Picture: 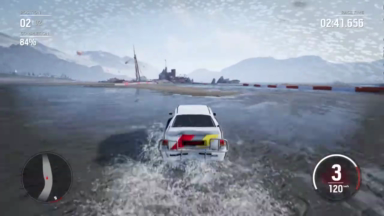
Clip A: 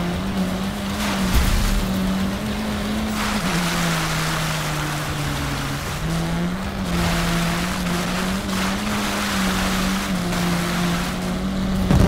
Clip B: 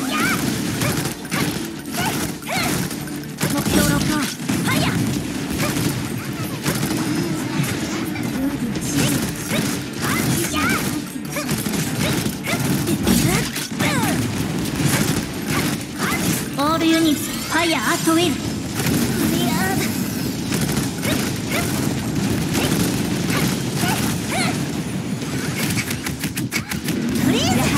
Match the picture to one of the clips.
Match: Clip A